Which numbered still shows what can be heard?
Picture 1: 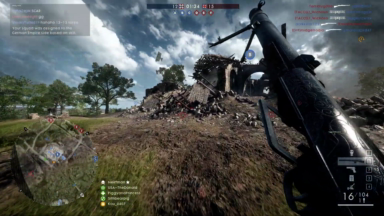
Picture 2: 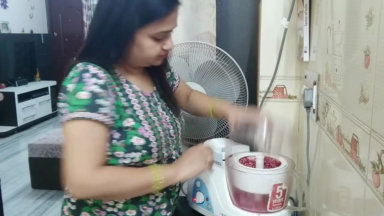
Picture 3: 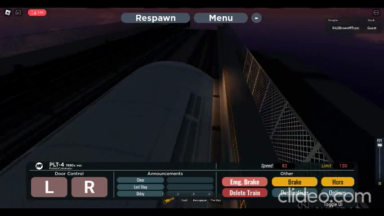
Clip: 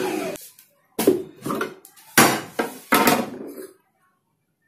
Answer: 2